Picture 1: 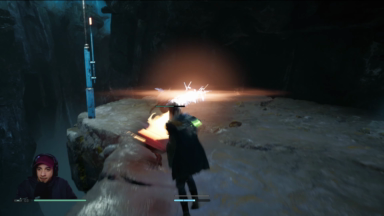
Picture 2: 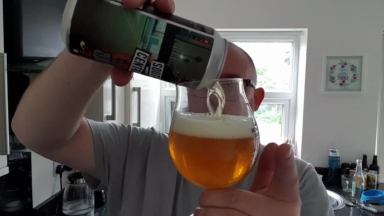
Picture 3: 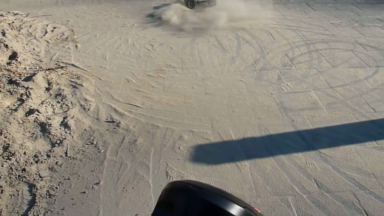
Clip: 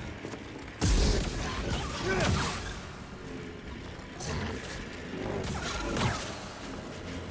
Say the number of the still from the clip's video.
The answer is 1